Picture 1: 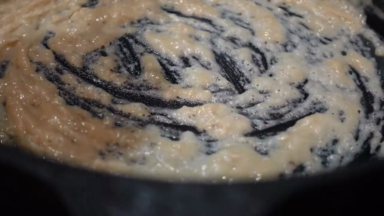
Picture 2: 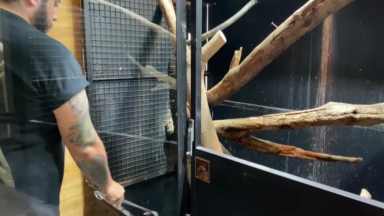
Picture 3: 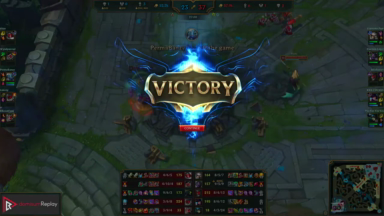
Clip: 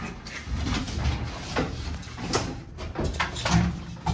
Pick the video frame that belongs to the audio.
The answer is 2